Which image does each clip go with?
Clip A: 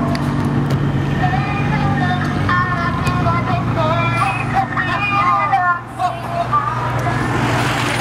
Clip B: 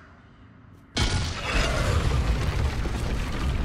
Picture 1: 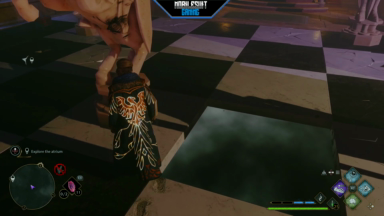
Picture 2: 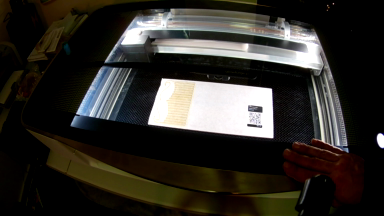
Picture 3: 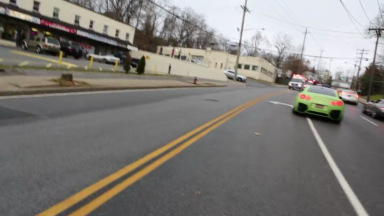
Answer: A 3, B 1